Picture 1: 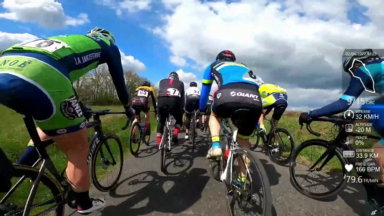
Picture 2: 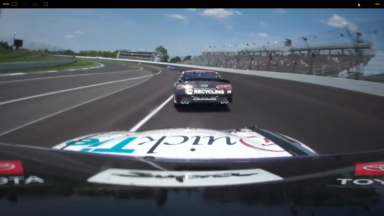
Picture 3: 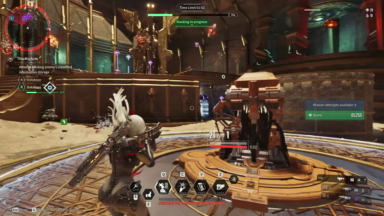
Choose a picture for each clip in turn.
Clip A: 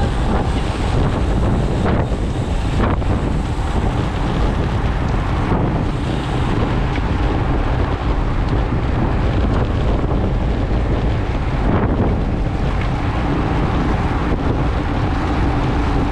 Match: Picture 1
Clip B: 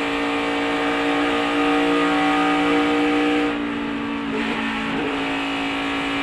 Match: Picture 2